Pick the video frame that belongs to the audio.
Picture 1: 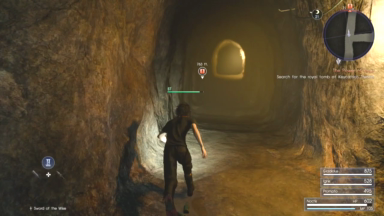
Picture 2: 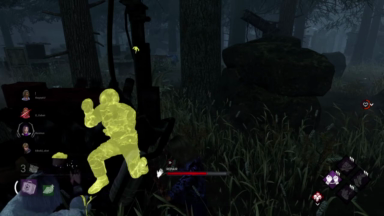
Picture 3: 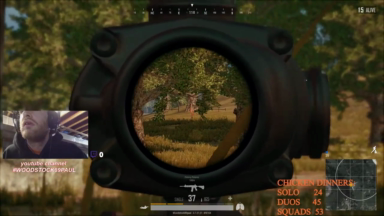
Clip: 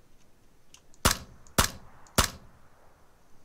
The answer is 3